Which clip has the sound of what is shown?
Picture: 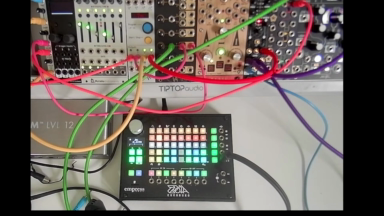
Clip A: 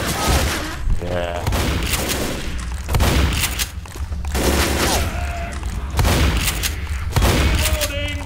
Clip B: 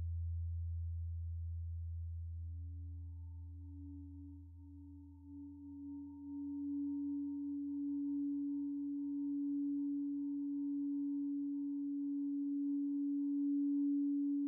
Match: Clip B